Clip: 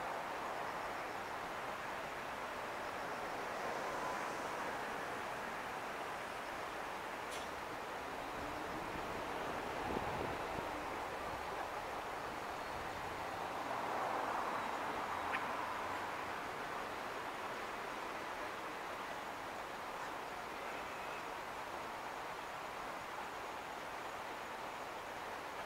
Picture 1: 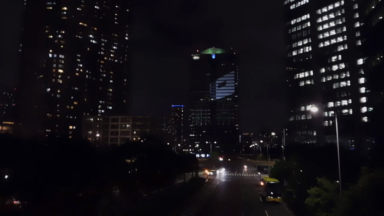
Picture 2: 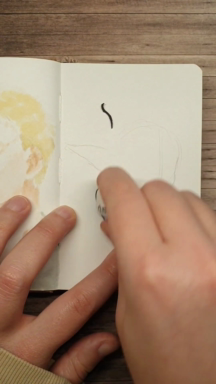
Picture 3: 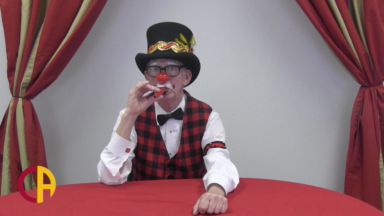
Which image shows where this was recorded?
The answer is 1